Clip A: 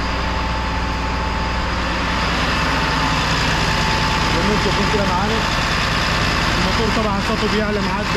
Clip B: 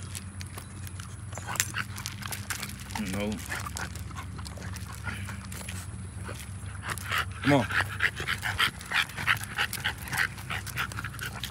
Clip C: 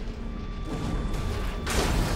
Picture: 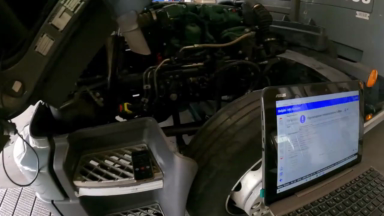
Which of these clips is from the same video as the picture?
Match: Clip A